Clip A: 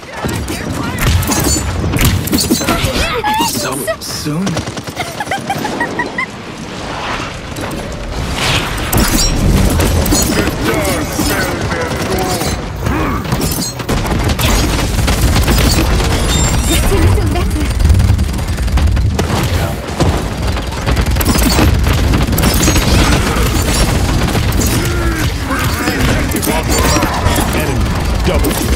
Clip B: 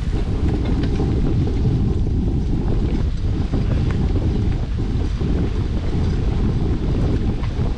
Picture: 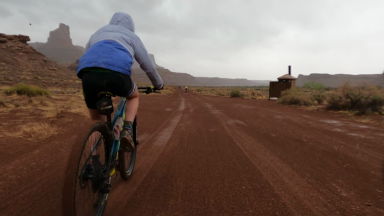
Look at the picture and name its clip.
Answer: B